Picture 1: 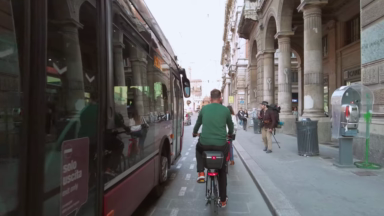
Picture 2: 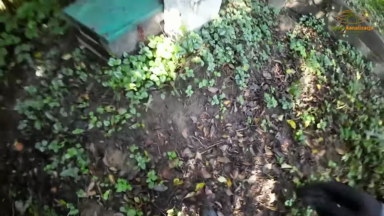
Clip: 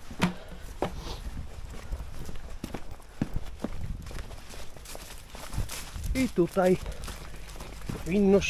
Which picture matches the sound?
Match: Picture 2